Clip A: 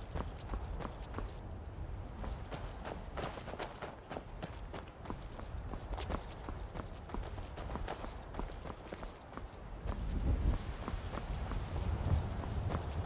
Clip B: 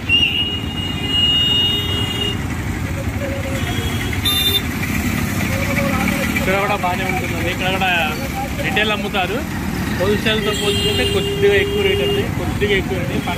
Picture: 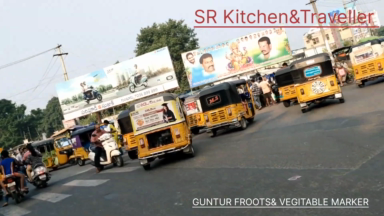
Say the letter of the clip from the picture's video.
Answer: B